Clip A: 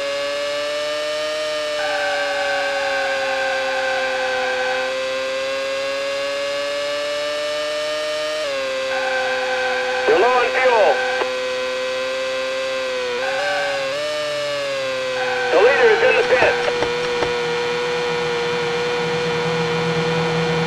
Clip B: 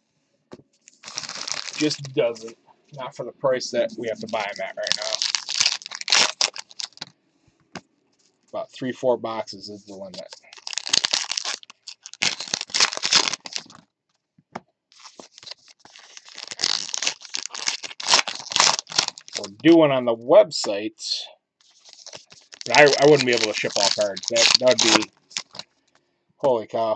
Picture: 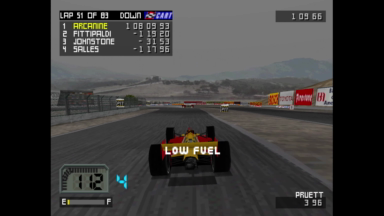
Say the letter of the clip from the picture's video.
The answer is A